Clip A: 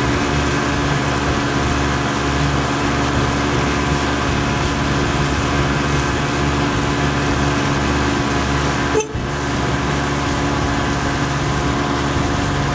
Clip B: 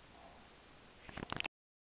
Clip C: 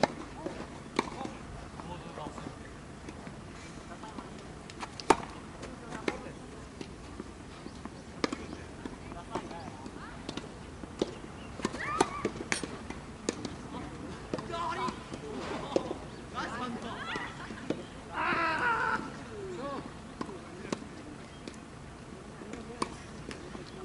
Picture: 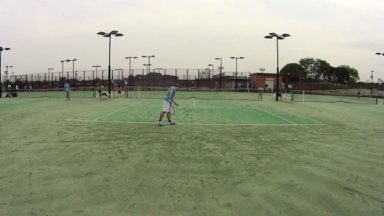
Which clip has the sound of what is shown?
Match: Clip C